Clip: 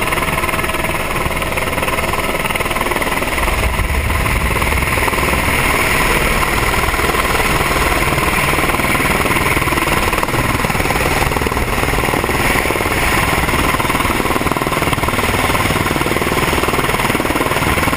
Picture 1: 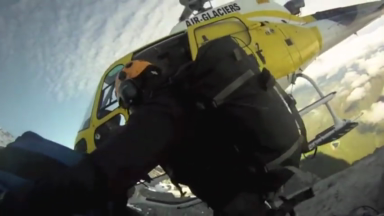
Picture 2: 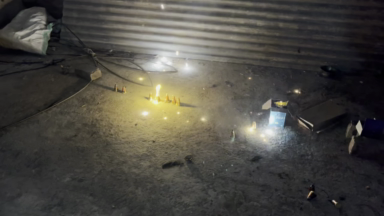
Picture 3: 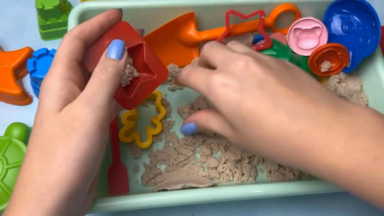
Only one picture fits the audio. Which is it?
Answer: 1